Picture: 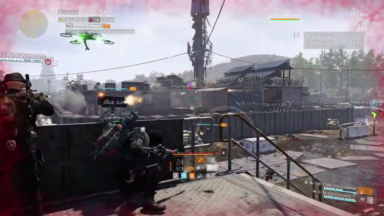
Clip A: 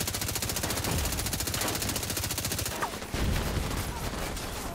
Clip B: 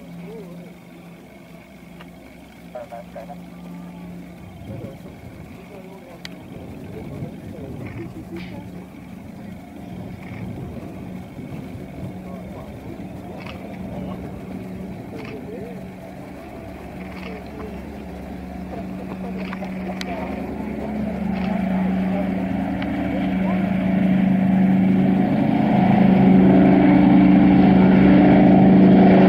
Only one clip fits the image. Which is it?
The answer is A